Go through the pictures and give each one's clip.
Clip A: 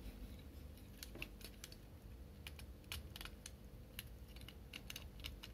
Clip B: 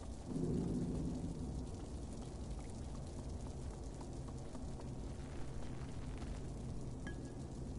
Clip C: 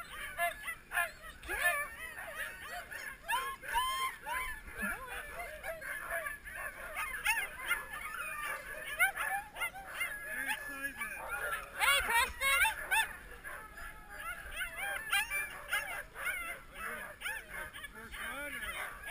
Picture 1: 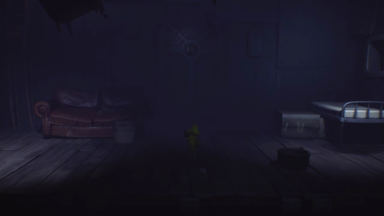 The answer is B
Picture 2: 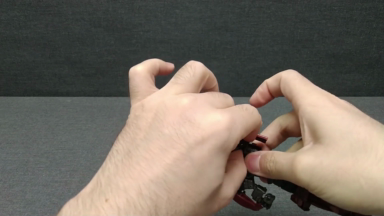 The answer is A